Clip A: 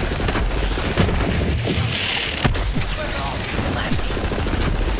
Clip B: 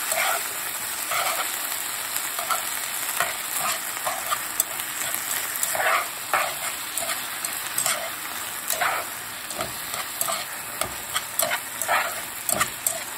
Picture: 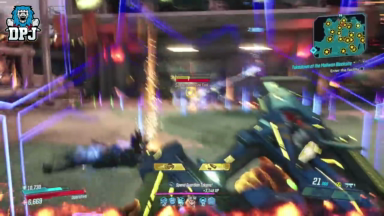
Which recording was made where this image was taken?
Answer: A